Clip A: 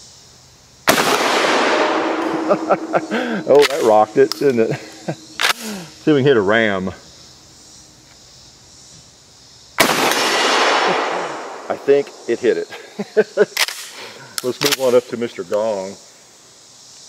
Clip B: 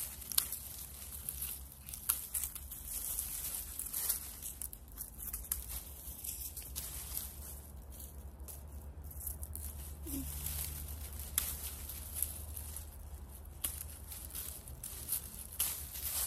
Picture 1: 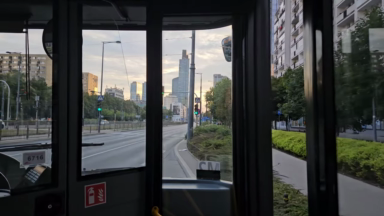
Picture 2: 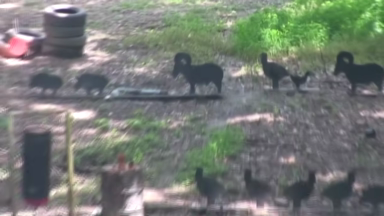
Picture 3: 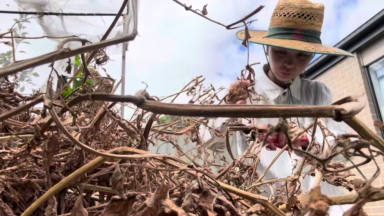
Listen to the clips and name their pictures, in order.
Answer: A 2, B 3